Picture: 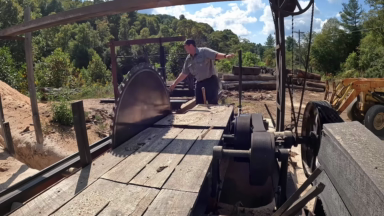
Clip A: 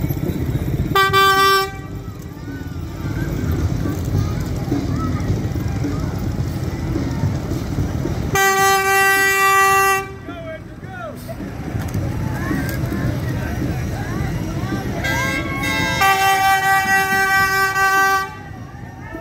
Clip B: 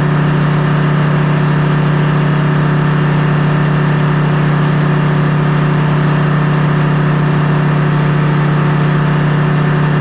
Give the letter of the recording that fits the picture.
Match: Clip B